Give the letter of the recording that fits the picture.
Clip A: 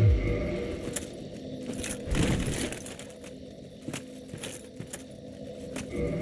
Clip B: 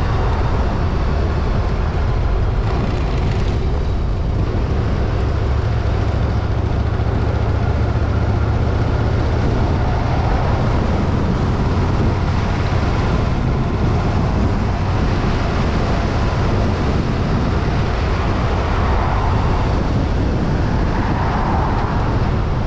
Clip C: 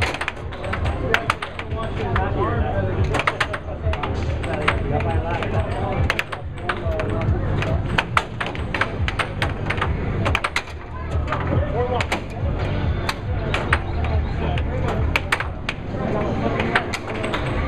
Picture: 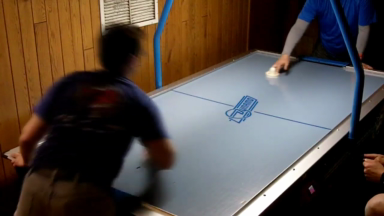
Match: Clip C